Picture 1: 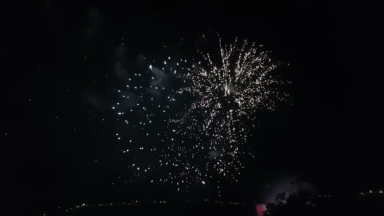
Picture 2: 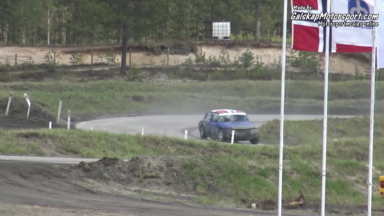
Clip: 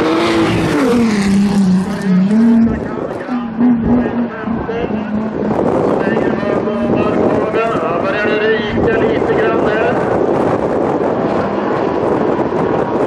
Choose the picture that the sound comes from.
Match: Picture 2